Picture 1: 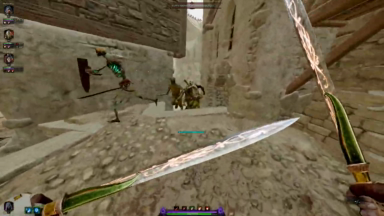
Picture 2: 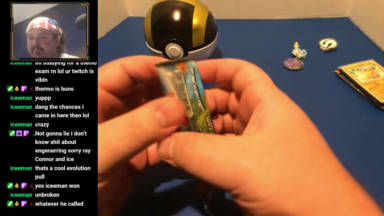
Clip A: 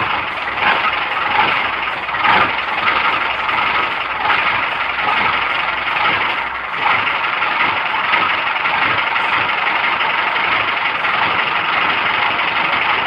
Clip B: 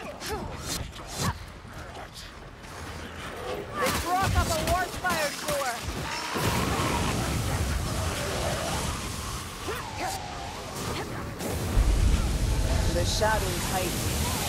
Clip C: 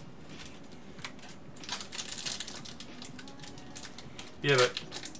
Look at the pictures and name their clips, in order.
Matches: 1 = B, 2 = C